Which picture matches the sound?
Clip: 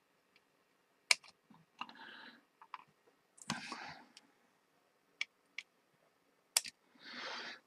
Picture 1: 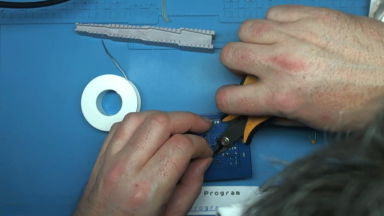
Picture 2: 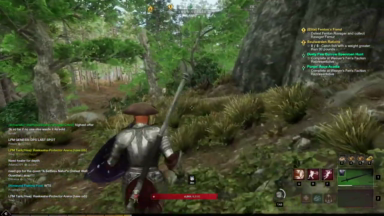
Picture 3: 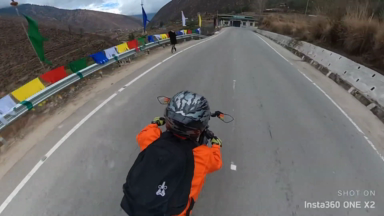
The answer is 1